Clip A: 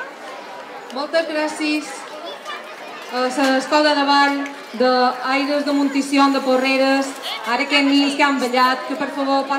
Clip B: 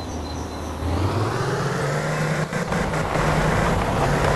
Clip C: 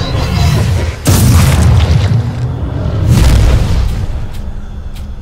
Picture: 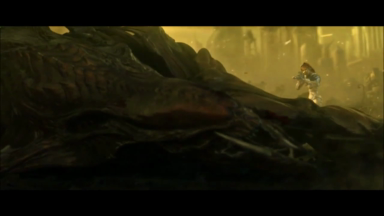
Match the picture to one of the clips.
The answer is C